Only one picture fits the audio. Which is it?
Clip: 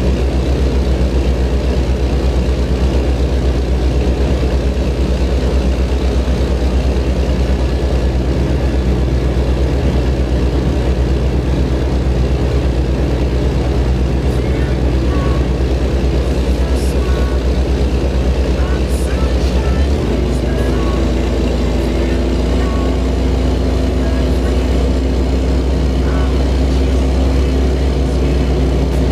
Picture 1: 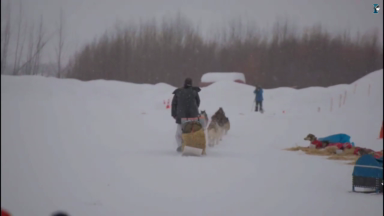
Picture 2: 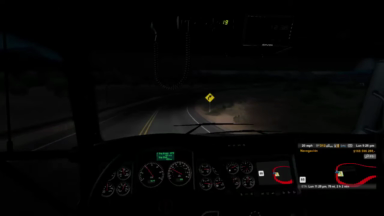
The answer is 2